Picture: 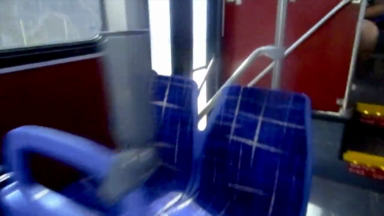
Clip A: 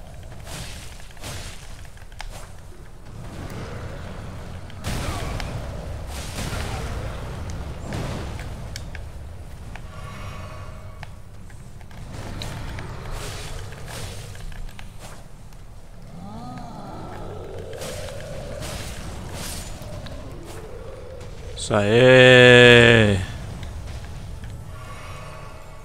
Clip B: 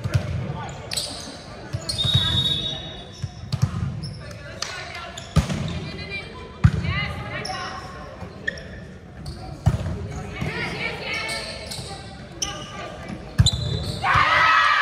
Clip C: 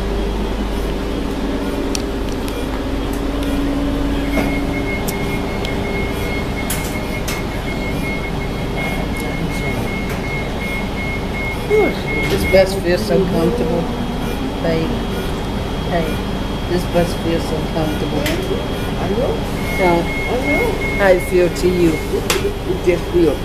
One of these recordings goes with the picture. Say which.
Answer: C